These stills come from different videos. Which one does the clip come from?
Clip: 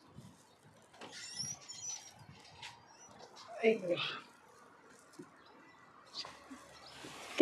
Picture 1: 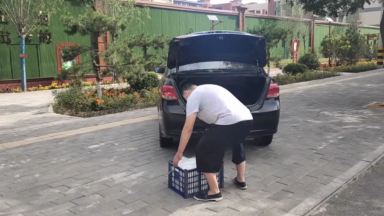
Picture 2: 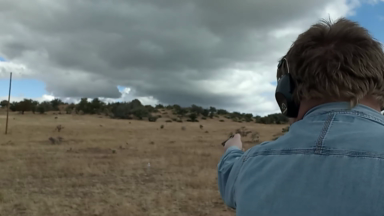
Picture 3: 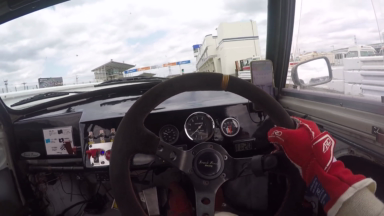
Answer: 1